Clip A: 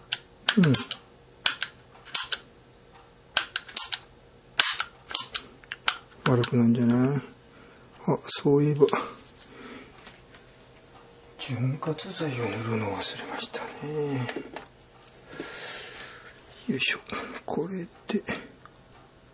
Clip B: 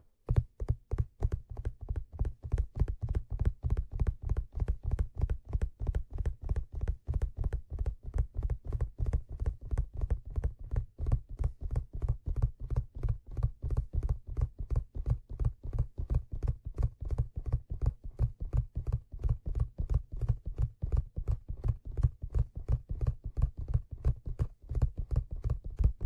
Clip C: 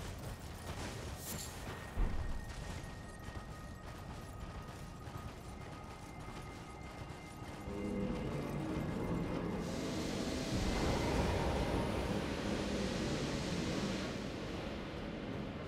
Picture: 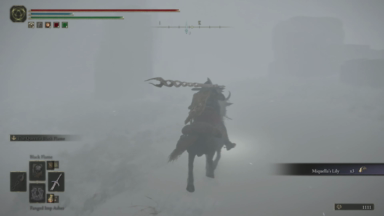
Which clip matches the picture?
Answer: C